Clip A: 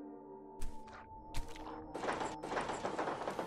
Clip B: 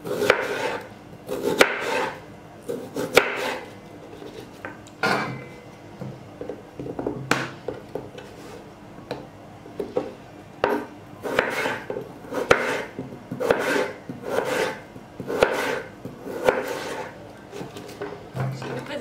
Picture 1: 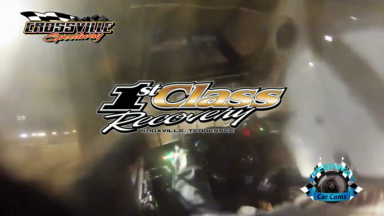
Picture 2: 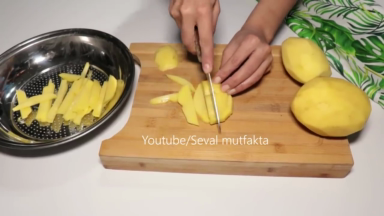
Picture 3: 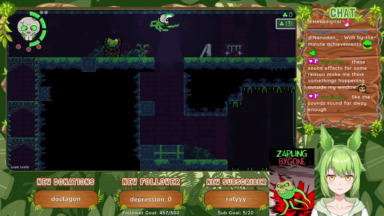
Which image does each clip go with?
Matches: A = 3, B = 2